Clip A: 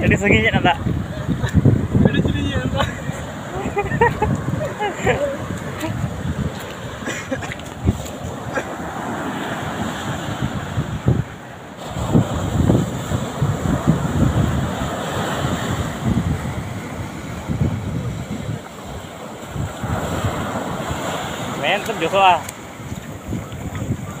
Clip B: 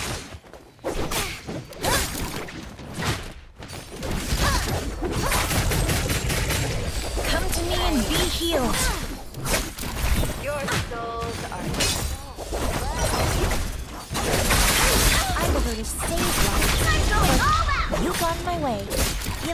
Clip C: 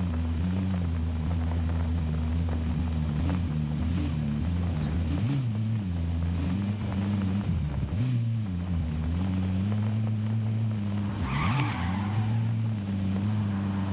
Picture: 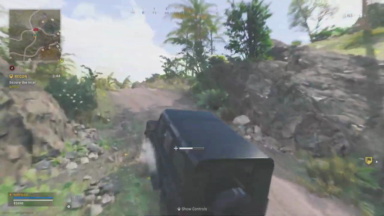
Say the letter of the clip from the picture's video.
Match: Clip C